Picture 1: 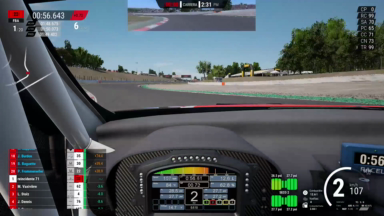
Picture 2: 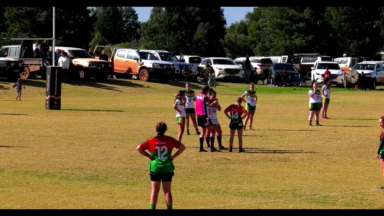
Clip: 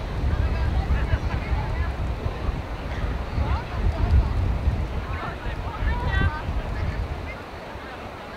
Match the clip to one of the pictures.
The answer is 2